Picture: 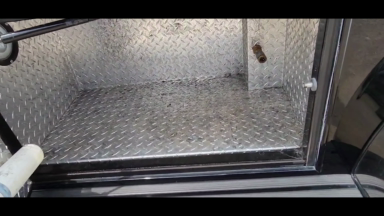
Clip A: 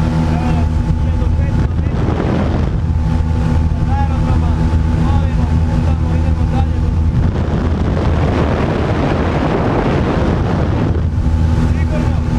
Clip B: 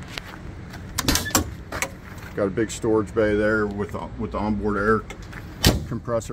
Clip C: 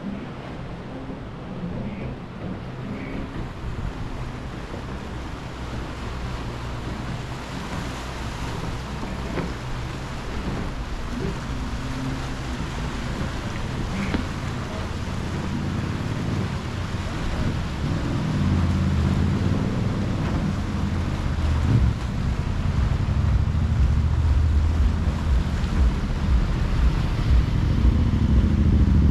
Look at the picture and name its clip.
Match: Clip B